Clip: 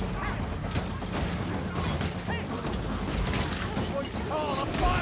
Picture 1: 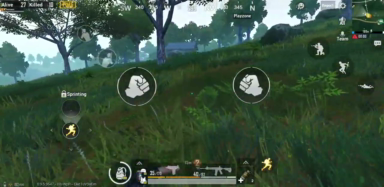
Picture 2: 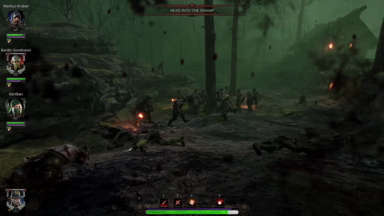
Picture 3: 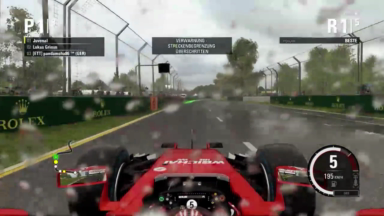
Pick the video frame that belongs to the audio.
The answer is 2